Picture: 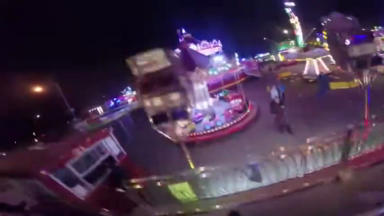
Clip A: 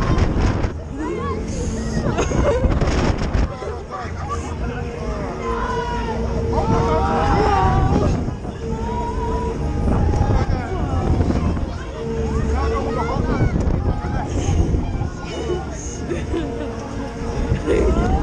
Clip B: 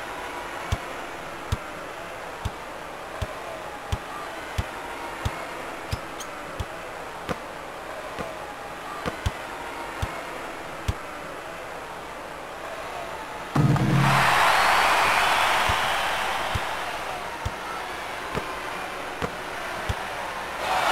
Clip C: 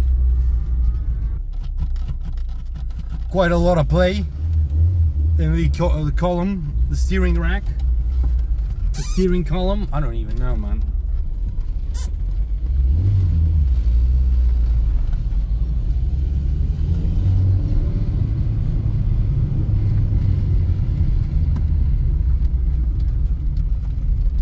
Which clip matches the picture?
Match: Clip A